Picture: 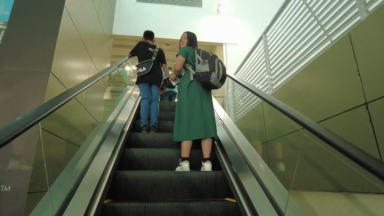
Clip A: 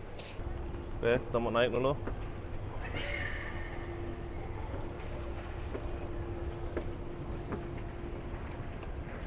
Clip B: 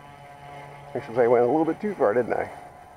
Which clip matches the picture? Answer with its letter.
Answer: A